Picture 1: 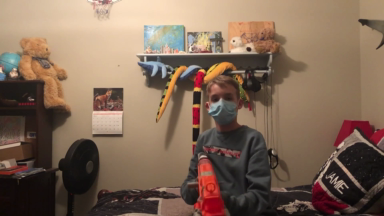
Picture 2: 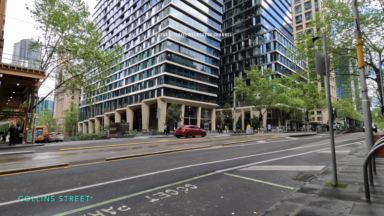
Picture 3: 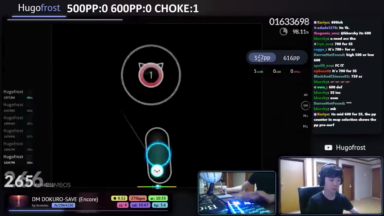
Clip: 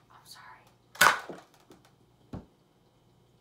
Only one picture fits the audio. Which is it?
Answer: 1